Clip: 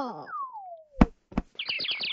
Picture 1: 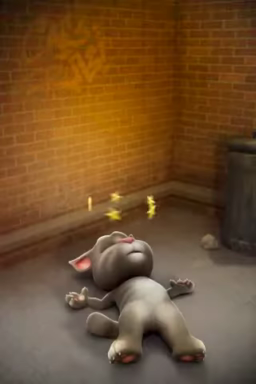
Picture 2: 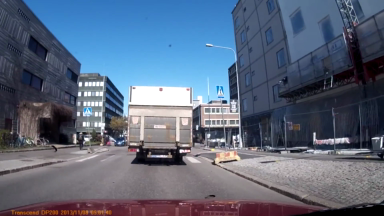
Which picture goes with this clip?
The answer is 1